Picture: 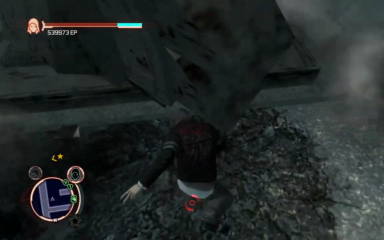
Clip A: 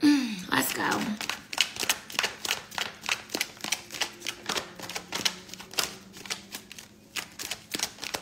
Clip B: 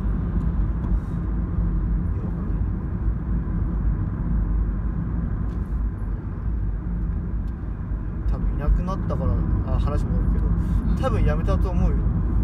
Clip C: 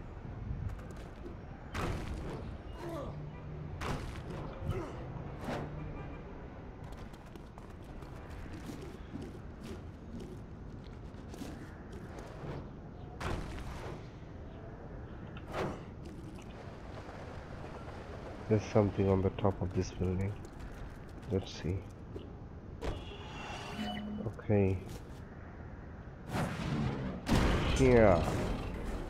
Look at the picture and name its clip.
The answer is C